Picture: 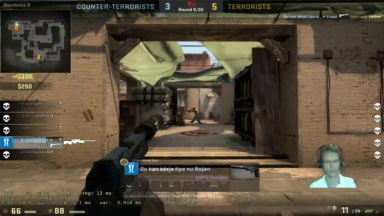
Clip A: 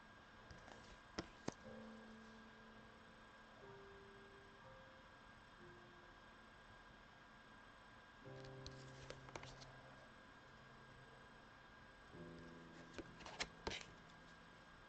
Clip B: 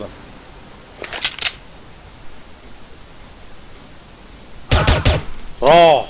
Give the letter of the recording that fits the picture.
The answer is B